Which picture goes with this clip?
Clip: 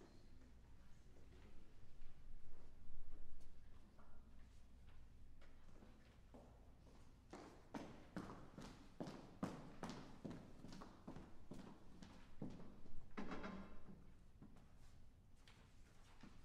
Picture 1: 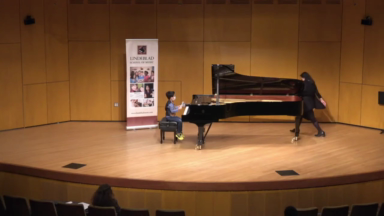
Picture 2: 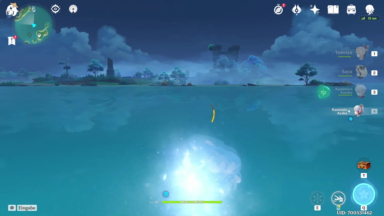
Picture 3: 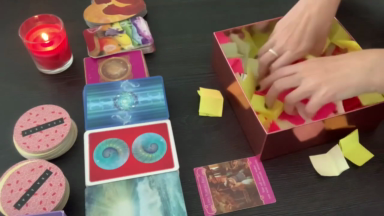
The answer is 1